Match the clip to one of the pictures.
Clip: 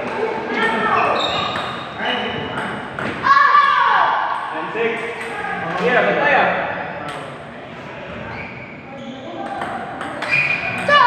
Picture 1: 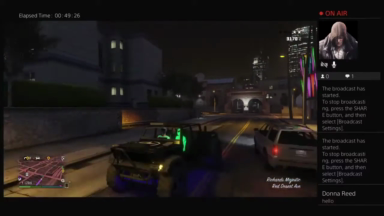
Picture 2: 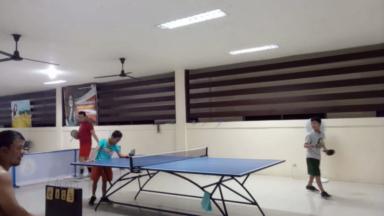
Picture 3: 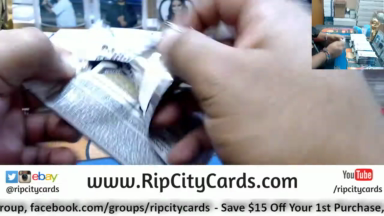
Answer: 2